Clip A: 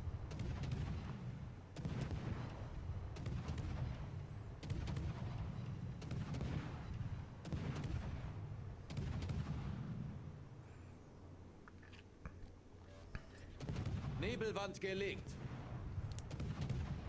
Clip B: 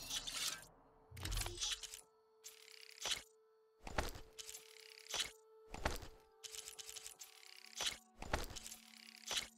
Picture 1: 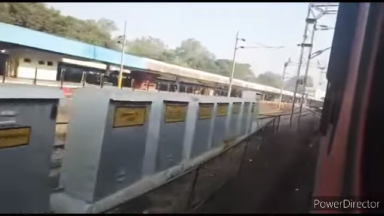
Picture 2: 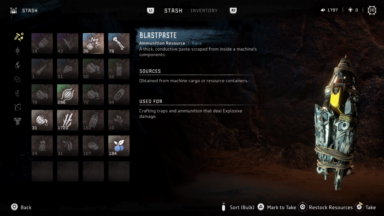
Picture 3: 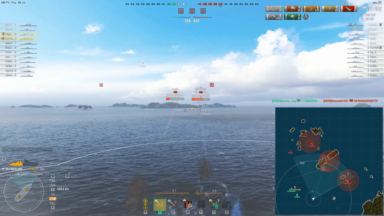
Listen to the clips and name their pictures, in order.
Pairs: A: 3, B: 2